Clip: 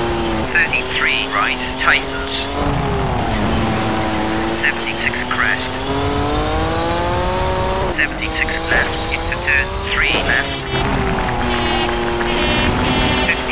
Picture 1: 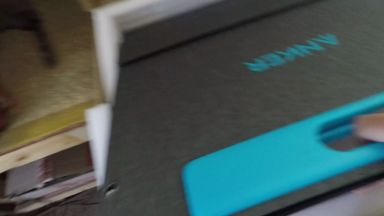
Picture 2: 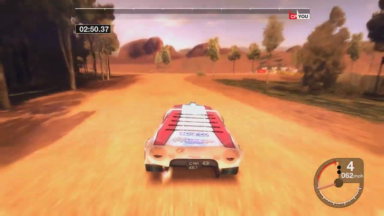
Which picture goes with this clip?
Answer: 2